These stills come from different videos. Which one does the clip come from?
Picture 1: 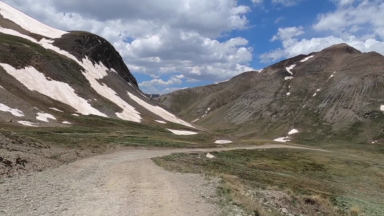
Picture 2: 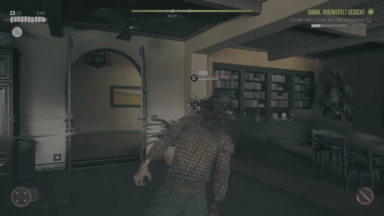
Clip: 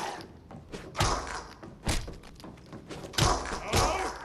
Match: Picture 2